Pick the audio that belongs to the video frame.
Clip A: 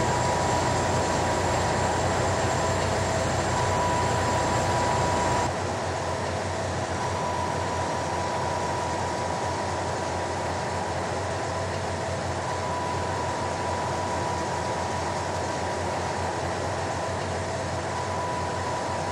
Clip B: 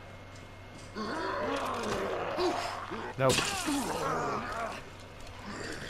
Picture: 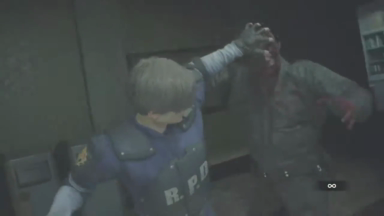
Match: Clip B